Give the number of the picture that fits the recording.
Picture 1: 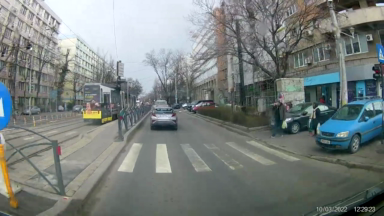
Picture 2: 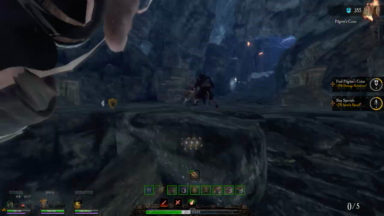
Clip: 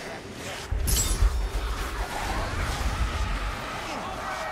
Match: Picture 2